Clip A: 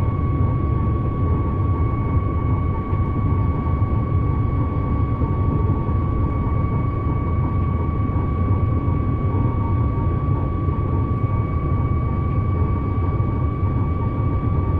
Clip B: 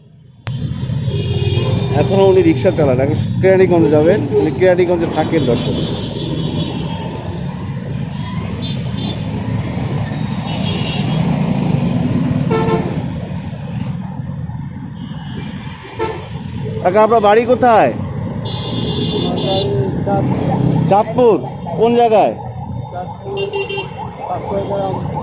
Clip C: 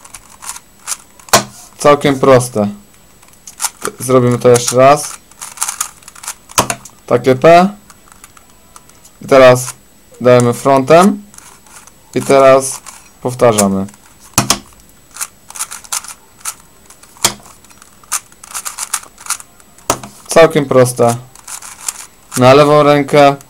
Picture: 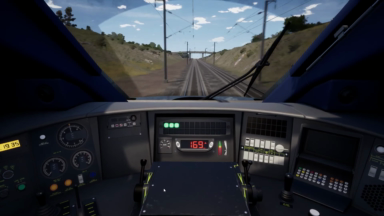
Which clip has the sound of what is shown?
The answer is A